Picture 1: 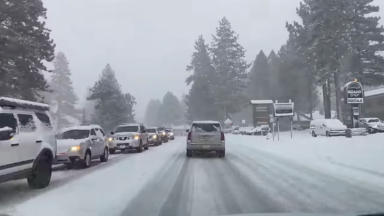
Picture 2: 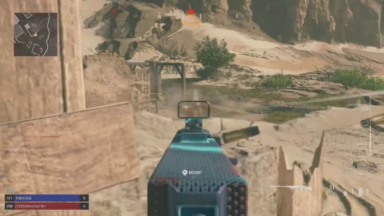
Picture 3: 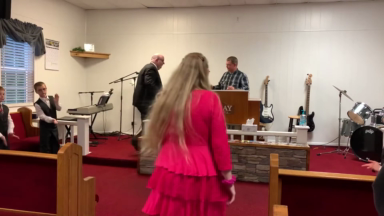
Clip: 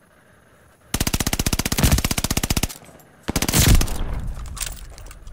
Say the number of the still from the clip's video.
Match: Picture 2